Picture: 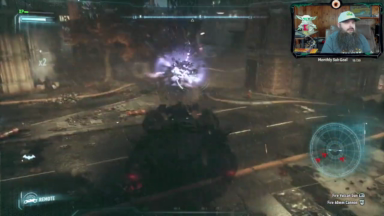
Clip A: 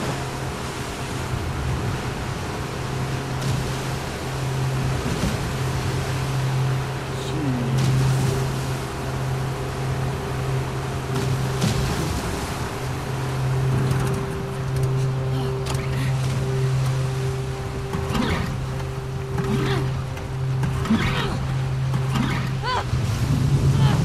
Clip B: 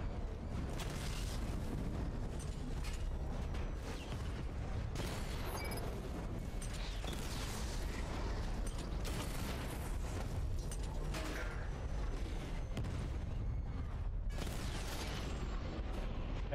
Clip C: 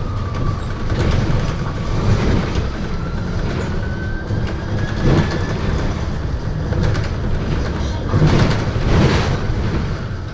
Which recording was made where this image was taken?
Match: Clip B